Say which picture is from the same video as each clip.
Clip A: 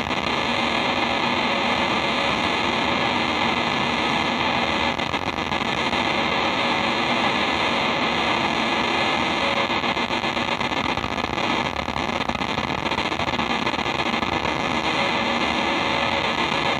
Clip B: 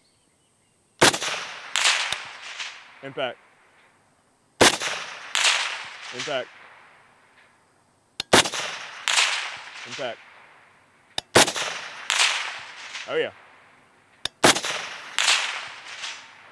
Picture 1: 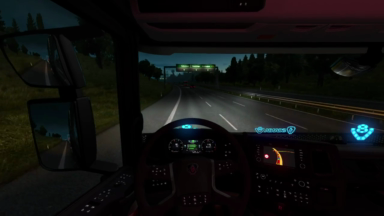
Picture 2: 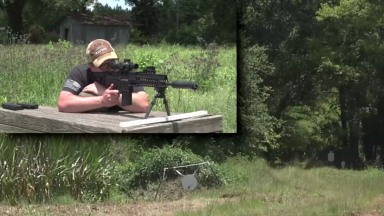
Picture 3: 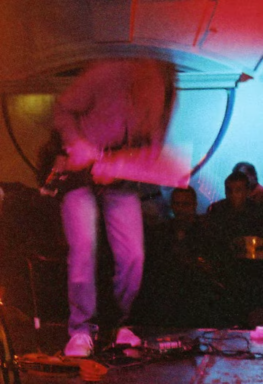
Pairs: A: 3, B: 2